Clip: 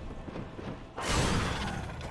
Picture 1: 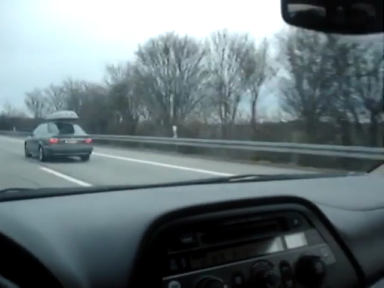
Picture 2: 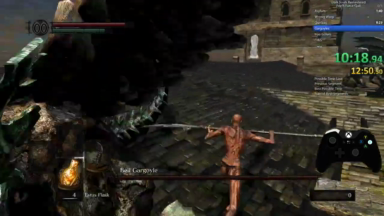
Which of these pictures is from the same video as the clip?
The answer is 2